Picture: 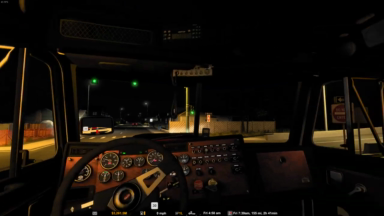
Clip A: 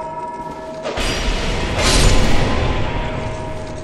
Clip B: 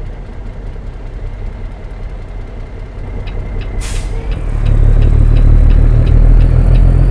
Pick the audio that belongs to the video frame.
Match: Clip B